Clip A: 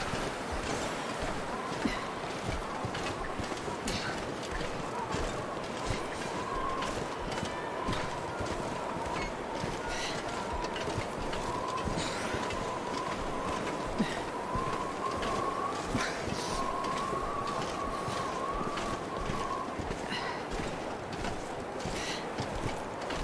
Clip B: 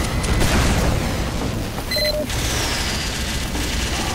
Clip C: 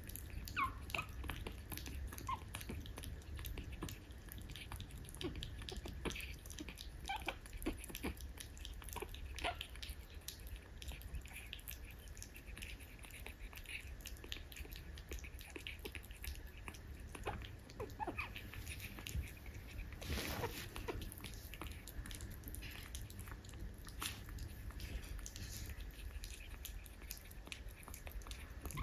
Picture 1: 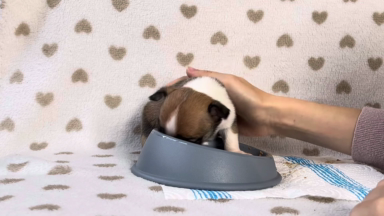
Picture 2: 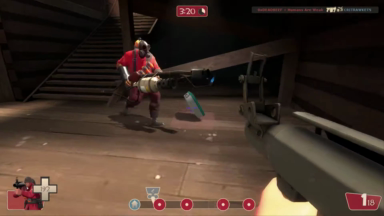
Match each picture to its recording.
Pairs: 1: C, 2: B